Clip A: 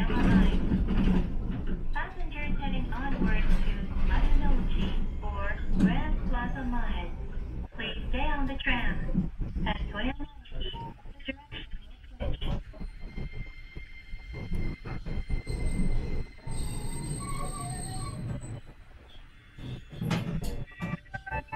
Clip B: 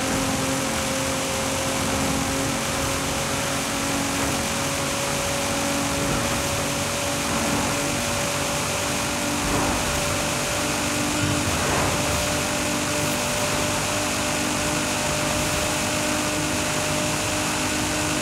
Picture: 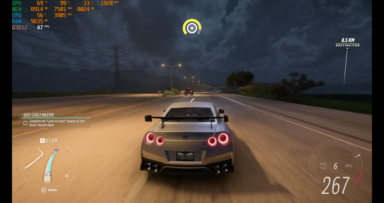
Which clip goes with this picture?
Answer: B